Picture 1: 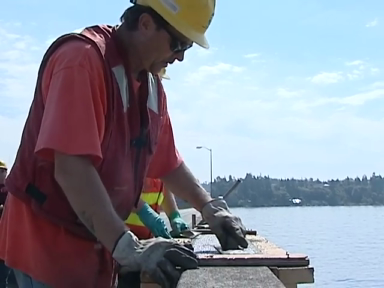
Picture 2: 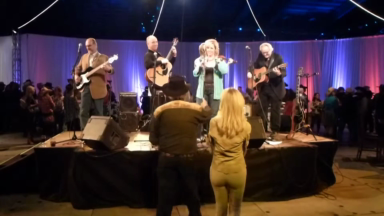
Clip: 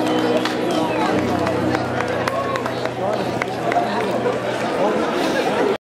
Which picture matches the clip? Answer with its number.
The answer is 2